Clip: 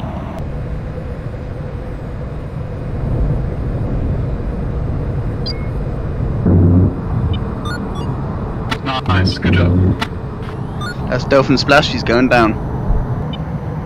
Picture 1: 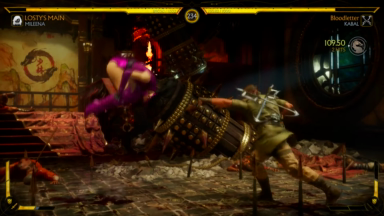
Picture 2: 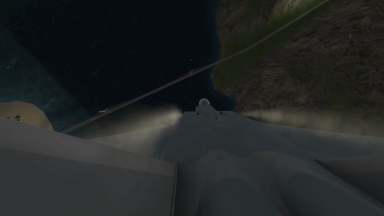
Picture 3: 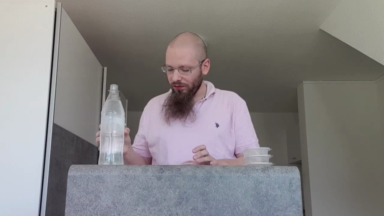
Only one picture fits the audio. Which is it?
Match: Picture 2